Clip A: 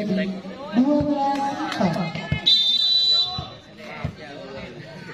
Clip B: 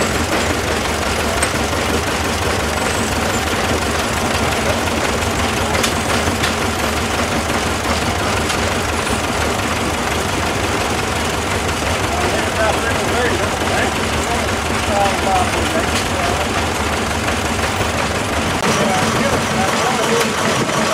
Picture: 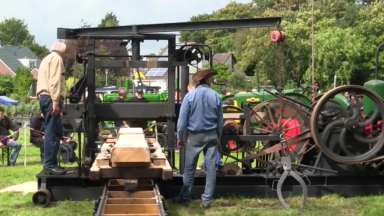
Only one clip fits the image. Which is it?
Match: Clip B